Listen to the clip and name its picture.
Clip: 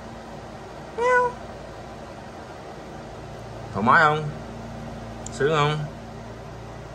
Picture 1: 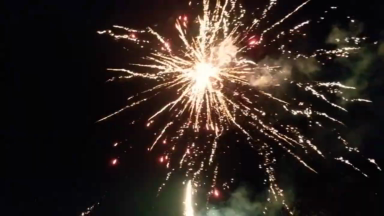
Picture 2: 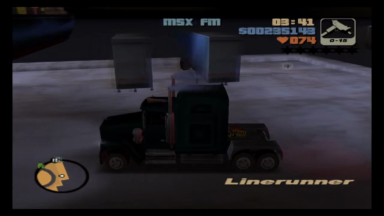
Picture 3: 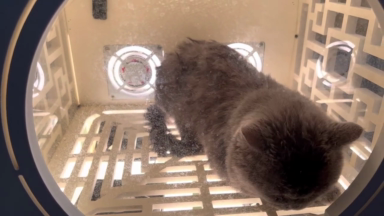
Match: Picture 3